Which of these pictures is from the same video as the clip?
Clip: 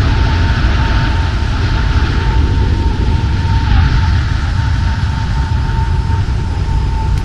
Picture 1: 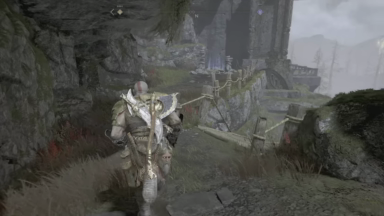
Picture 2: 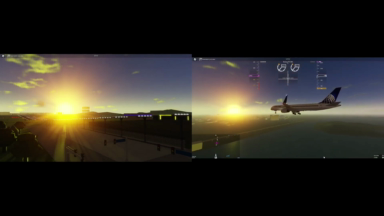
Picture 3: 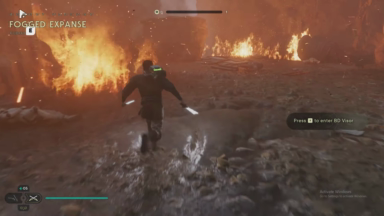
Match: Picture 2